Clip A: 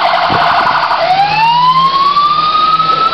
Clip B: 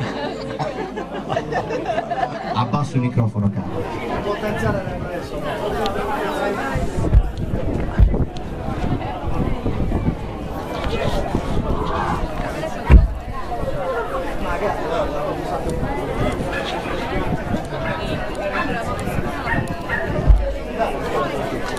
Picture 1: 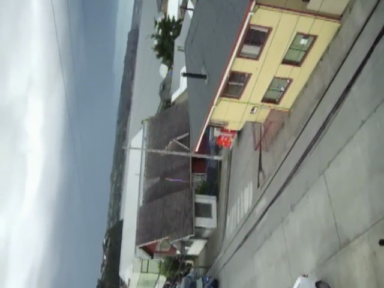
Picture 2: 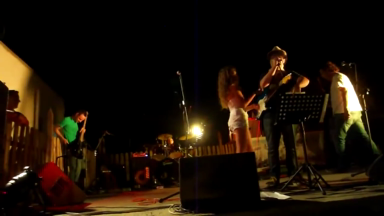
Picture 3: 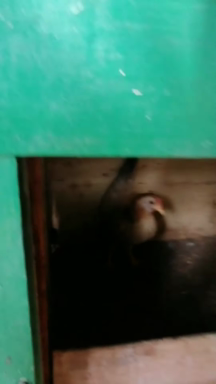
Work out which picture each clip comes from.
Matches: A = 1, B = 2